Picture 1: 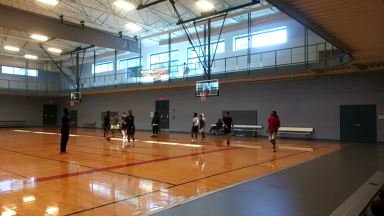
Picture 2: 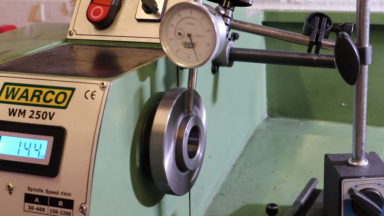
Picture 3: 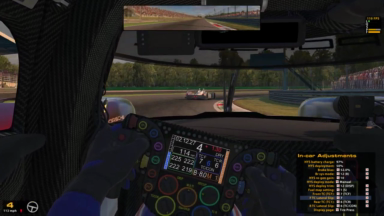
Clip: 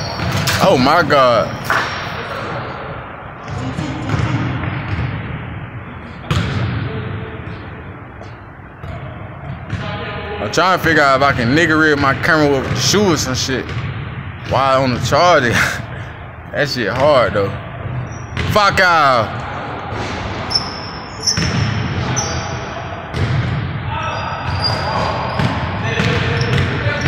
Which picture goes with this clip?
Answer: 1